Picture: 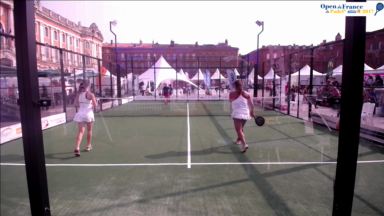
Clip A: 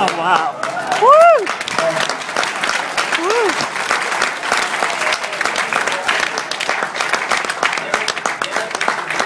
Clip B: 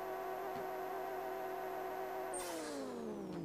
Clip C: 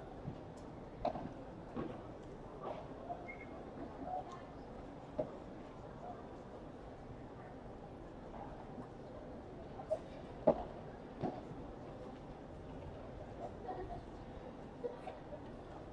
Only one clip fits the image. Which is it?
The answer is C